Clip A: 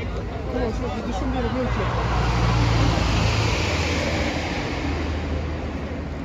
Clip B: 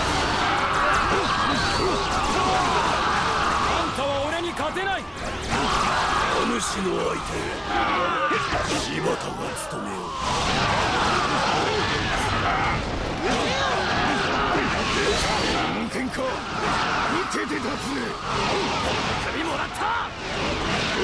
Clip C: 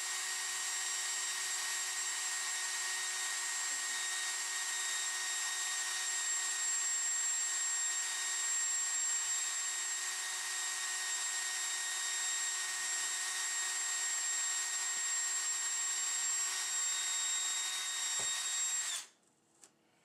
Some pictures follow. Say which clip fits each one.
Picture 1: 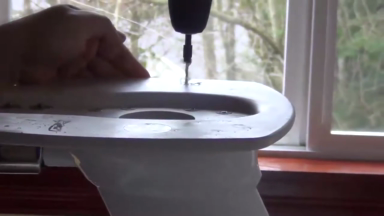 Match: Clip C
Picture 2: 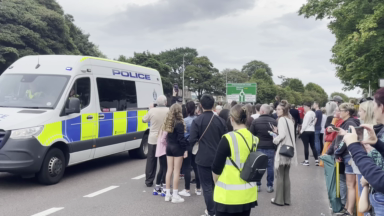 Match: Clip A